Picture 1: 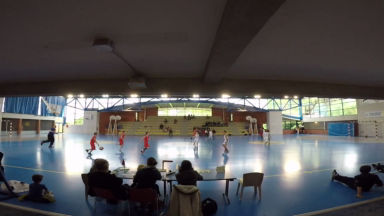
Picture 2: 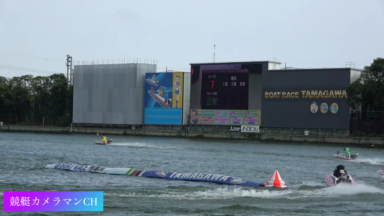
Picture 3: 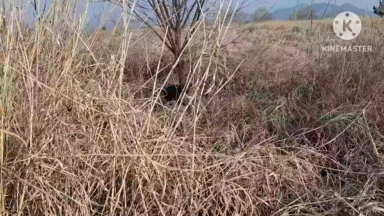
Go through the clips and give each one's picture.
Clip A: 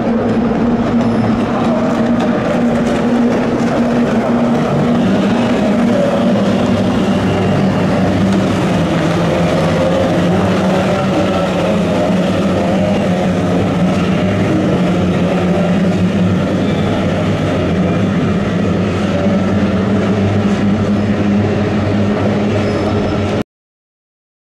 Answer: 2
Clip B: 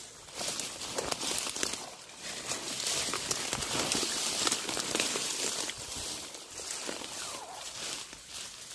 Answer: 3